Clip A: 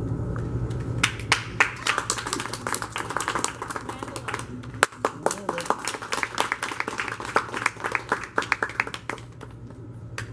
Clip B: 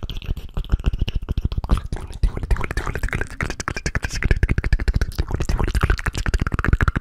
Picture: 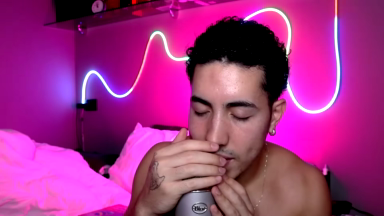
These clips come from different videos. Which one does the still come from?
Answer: B